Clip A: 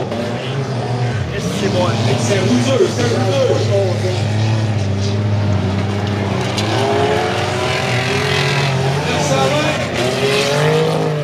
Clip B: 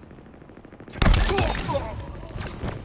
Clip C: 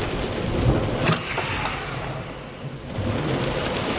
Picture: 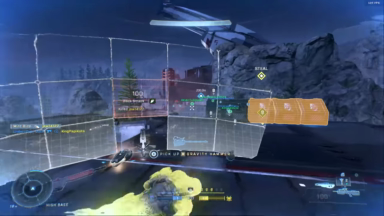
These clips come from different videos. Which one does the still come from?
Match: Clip B